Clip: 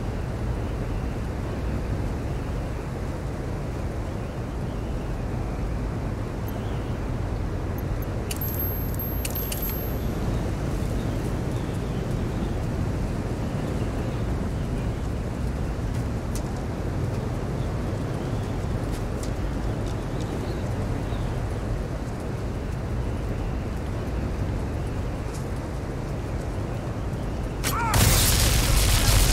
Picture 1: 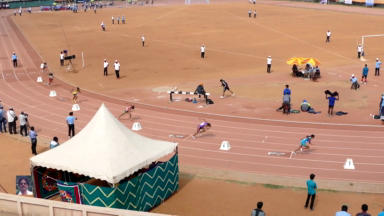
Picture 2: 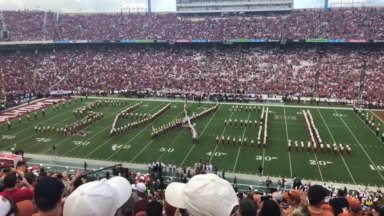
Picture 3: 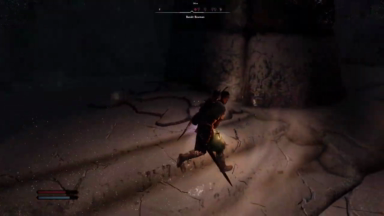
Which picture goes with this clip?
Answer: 3